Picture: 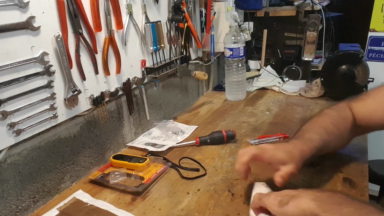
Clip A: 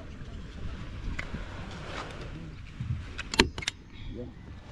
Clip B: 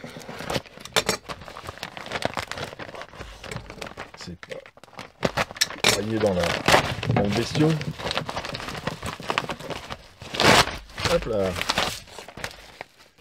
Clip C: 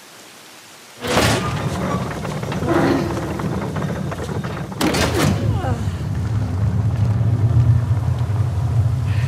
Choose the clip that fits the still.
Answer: B